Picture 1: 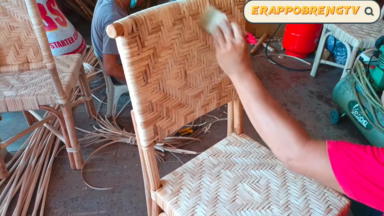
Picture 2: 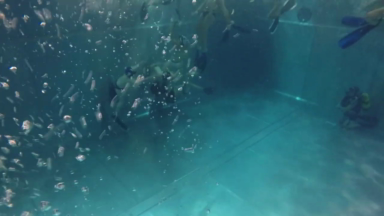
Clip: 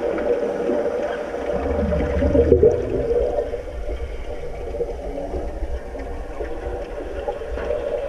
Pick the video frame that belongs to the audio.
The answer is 2